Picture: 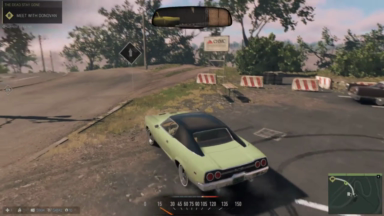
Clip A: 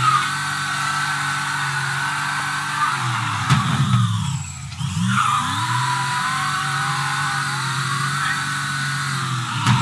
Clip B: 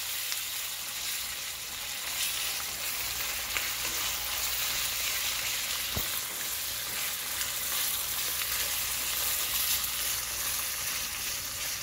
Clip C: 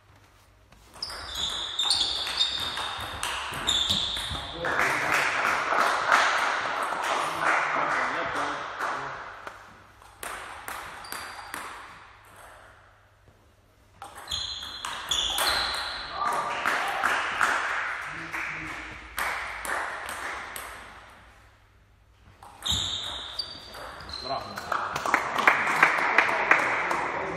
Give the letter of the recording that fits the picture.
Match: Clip A